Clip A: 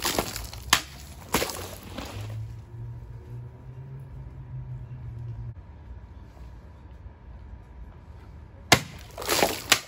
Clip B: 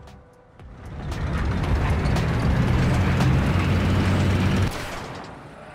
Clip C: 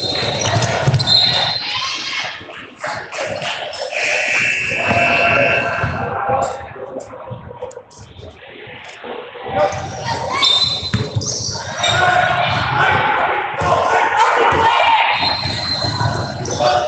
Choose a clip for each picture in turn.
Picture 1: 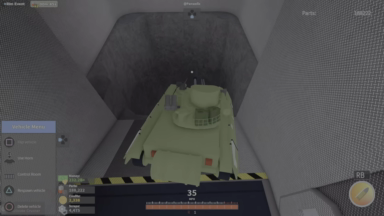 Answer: B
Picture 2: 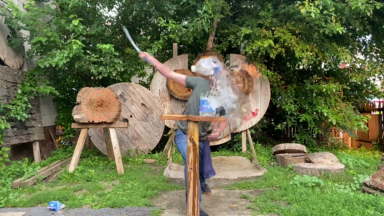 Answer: A